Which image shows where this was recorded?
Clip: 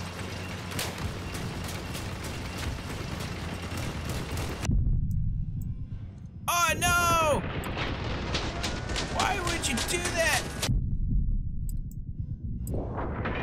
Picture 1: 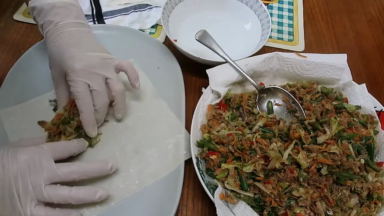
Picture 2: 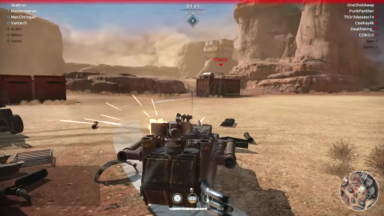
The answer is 2